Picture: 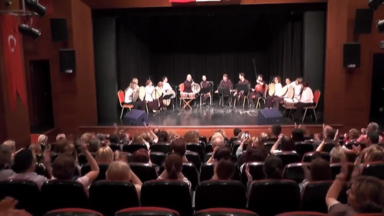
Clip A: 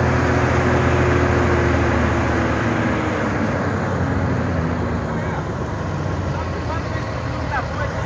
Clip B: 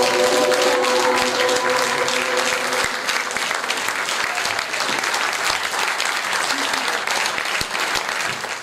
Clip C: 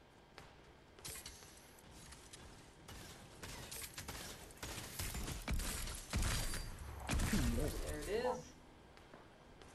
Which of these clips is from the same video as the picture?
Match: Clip B